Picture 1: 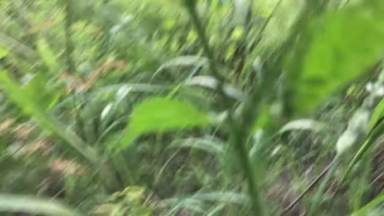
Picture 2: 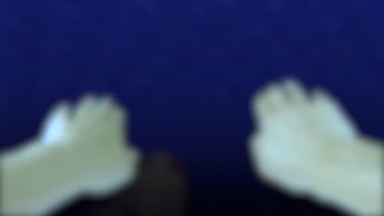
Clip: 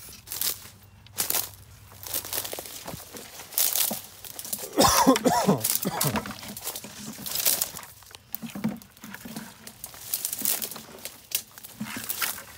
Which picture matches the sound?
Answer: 1